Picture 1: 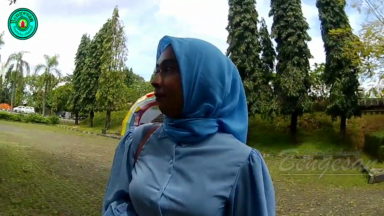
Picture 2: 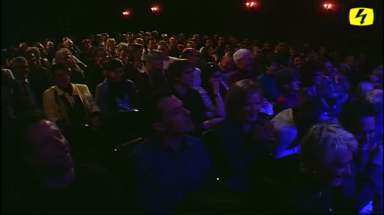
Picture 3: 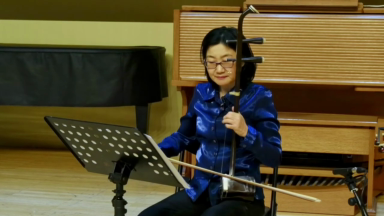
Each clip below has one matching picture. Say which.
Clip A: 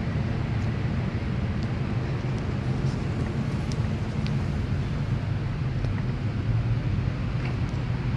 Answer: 1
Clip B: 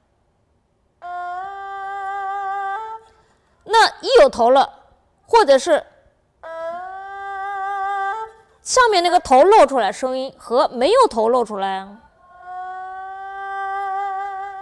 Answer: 3